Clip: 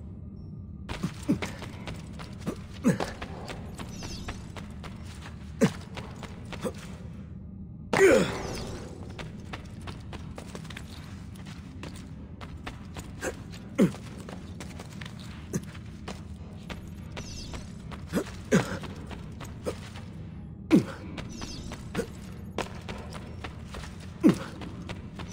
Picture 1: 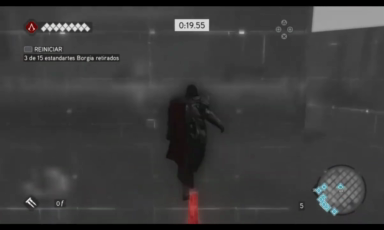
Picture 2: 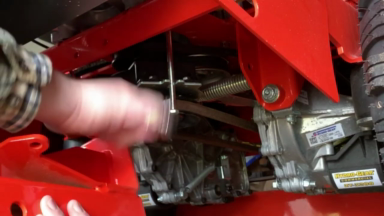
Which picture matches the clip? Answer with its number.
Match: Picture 1